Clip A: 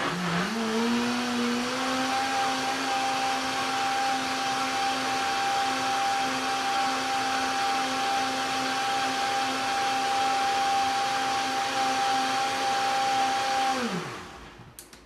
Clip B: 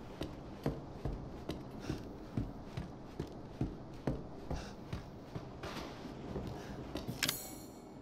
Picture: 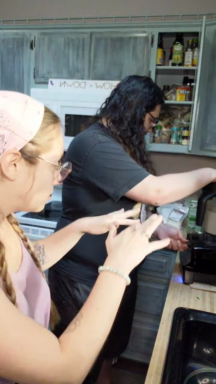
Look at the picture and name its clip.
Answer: A